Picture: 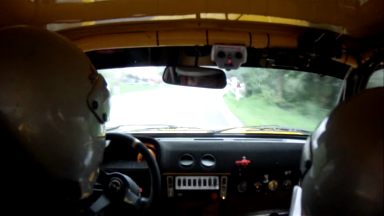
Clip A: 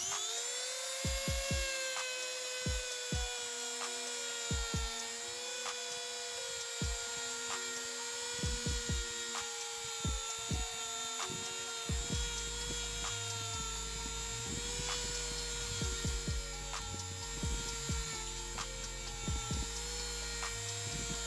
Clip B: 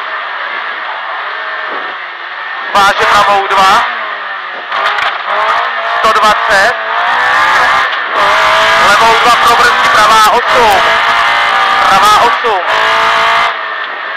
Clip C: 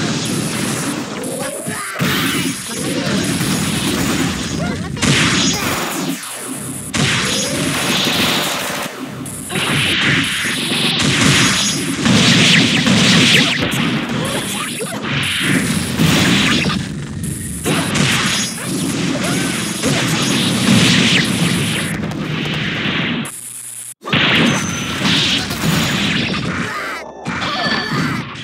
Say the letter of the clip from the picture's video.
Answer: B